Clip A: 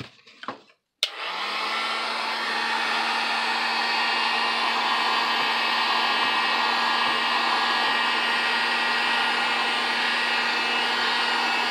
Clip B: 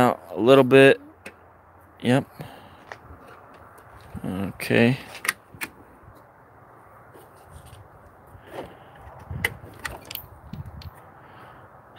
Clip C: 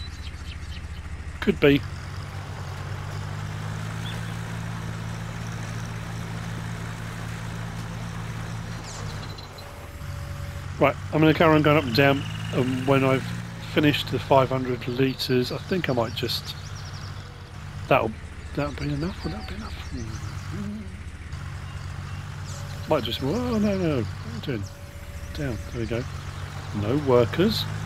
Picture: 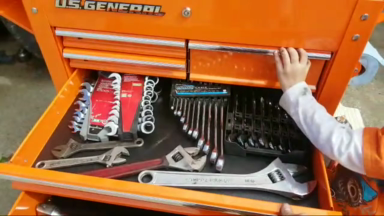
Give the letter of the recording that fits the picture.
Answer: B